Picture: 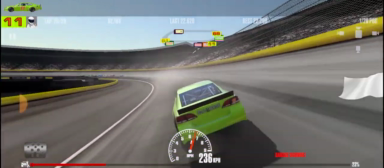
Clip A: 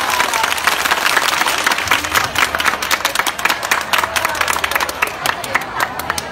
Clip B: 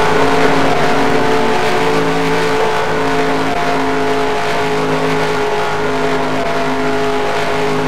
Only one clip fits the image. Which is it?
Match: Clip B